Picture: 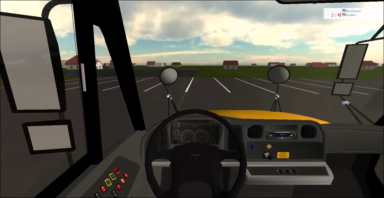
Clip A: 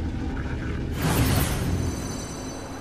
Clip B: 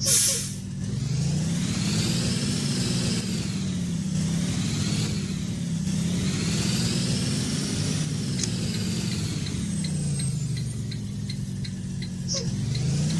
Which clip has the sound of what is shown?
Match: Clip B